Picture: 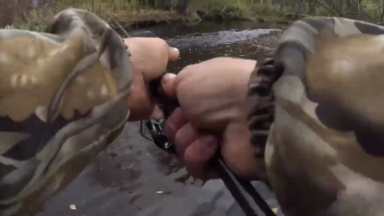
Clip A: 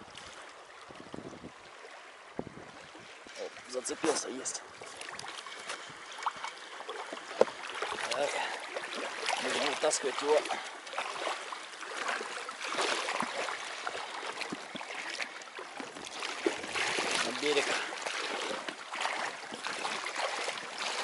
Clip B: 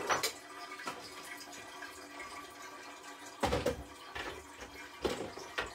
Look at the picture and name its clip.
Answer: A